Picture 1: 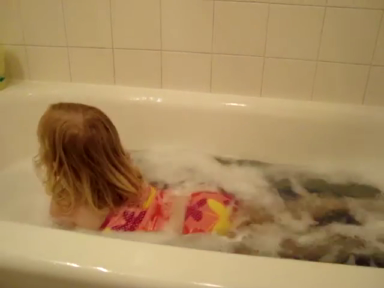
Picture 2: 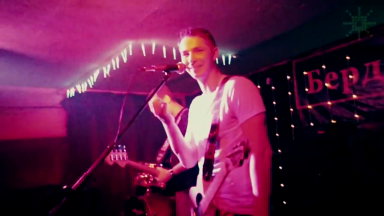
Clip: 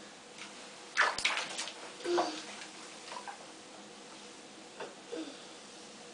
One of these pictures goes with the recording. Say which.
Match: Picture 1